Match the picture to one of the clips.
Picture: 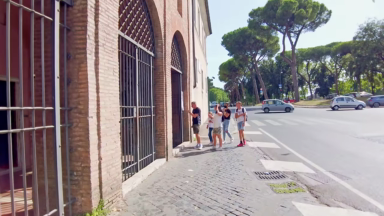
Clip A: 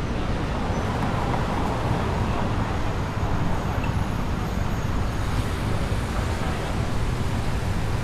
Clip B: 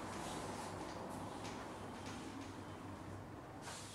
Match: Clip A